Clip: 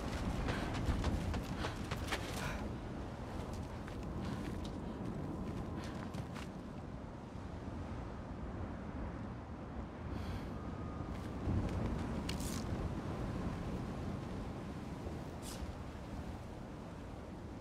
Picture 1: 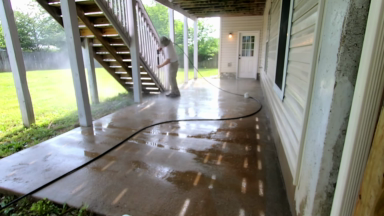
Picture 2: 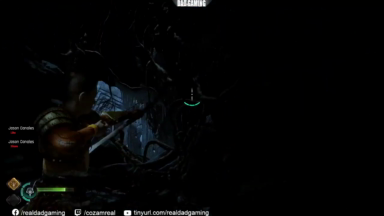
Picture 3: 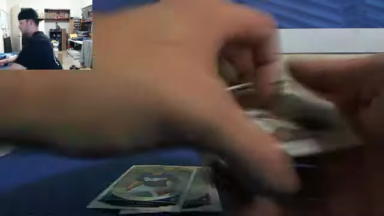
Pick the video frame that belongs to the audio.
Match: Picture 2